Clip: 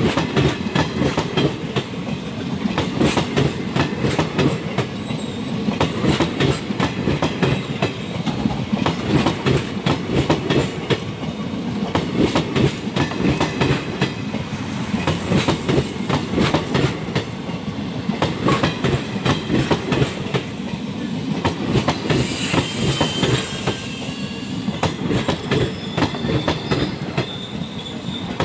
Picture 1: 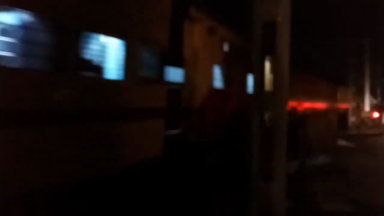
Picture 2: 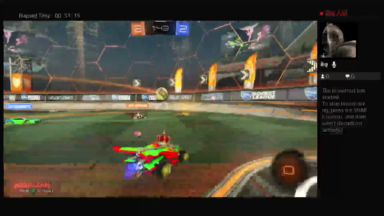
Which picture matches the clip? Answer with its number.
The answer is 1